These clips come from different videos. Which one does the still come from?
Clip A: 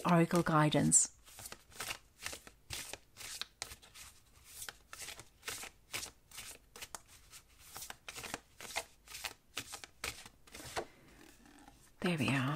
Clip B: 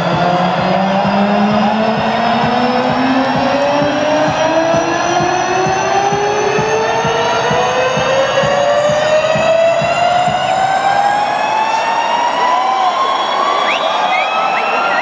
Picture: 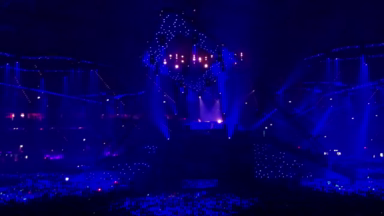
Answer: B